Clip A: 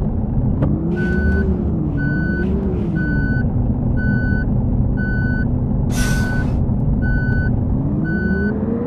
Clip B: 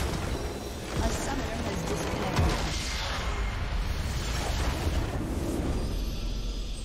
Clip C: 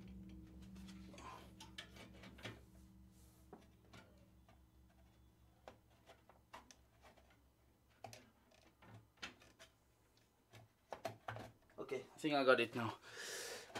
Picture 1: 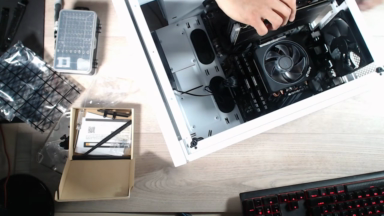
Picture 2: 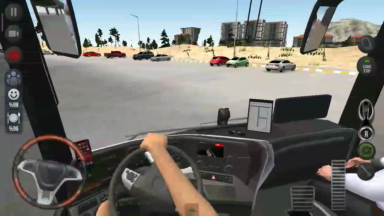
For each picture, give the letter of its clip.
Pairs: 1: C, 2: A